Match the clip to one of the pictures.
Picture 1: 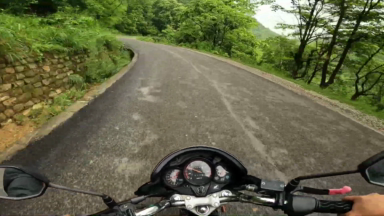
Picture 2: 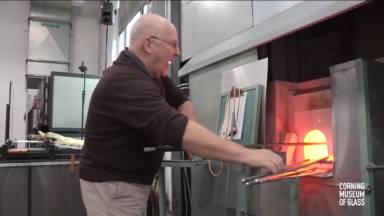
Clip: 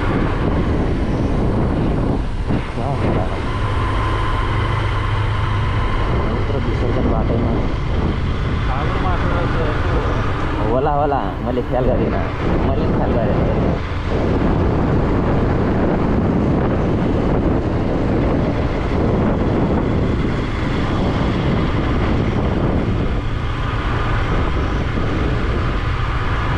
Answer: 1